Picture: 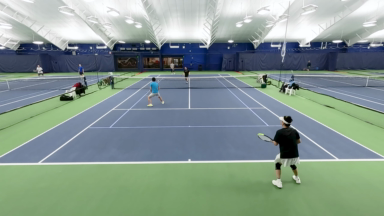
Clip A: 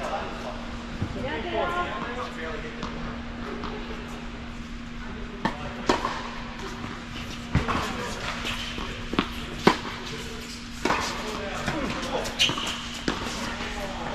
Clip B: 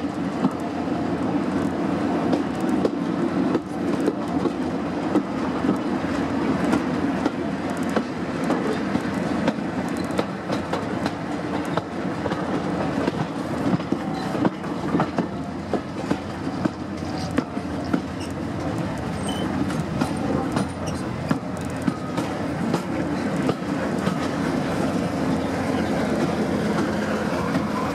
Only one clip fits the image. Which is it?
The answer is A